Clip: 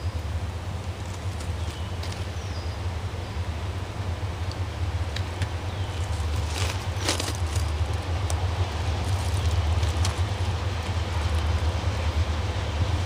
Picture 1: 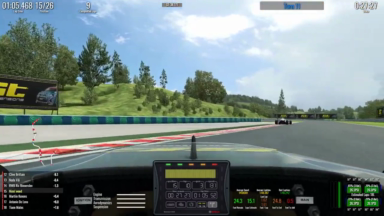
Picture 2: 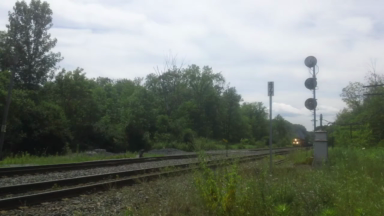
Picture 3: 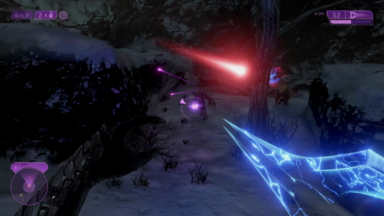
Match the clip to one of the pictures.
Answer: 2